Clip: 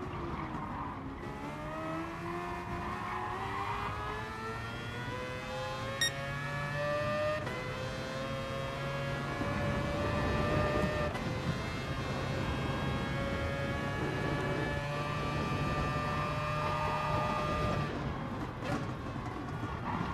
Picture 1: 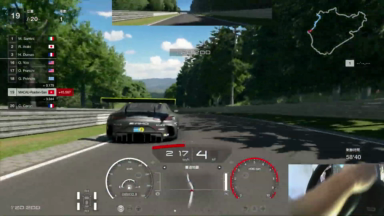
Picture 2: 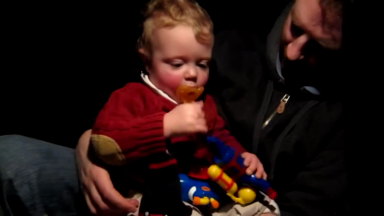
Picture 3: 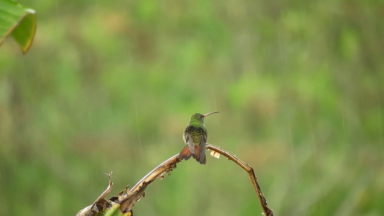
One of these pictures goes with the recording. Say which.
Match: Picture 1